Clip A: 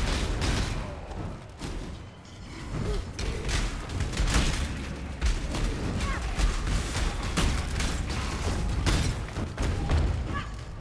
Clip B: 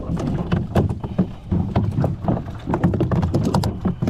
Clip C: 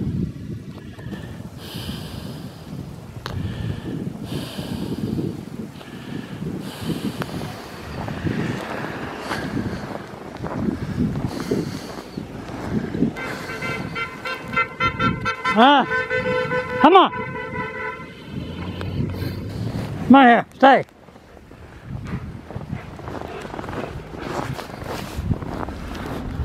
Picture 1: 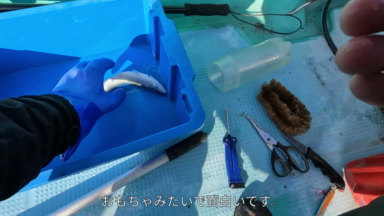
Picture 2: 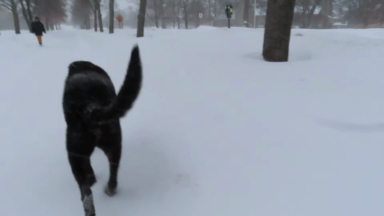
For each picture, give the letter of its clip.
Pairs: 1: B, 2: C